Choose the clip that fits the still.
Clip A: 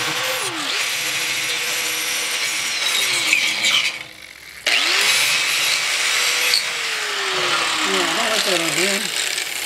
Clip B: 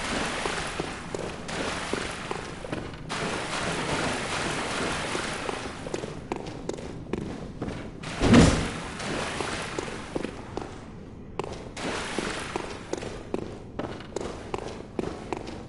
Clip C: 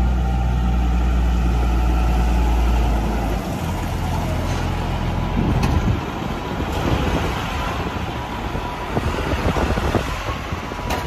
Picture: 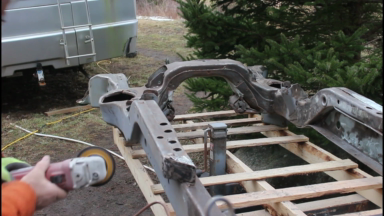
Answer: A